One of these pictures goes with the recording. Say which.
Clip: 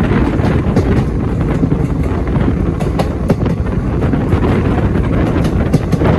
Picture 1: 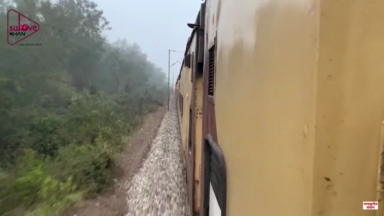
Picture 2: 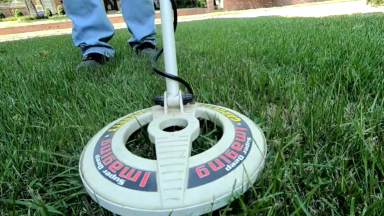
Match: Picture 1